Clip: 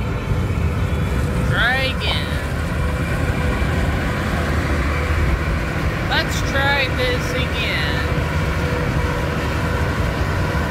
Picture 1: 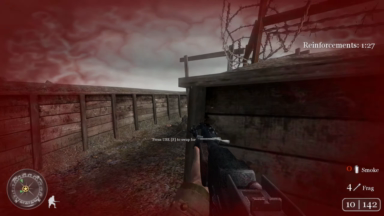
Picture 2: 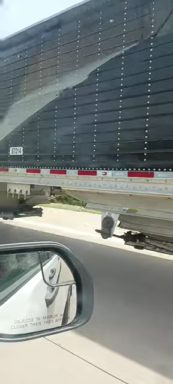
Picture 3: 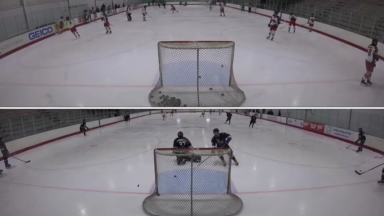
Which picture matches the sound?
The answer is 2